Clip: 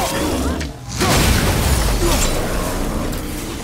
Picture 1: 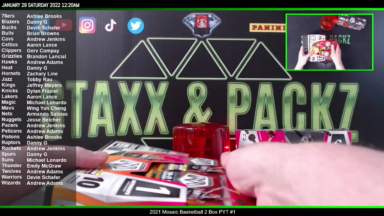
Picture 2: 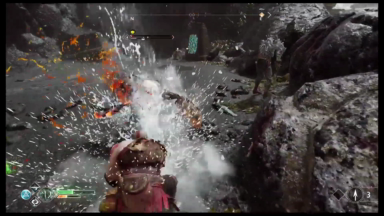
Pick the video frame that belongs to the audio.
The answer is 2